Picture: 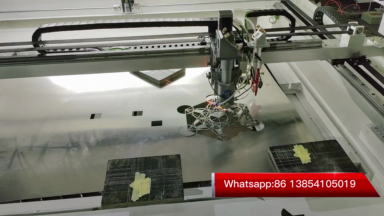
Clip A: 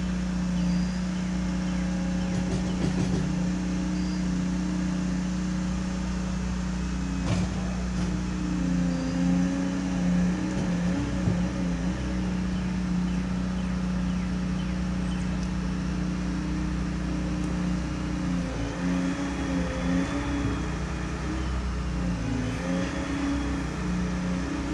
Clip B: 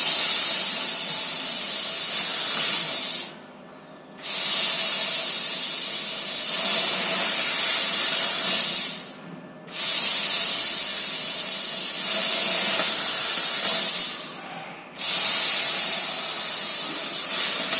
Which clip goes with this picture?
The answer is B